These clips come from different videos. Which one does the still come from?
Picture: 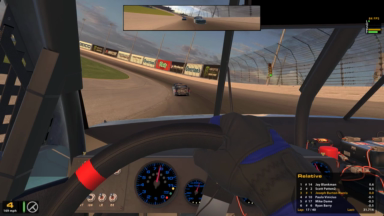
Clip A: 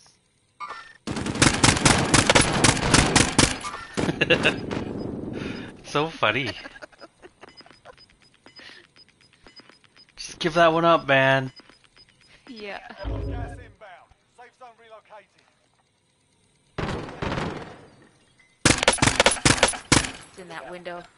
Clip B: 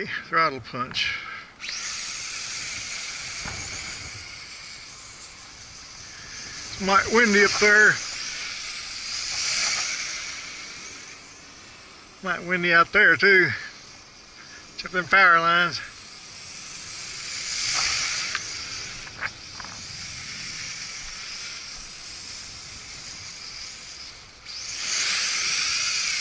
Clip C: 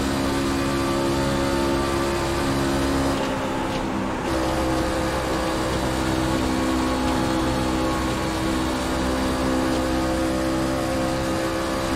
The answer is C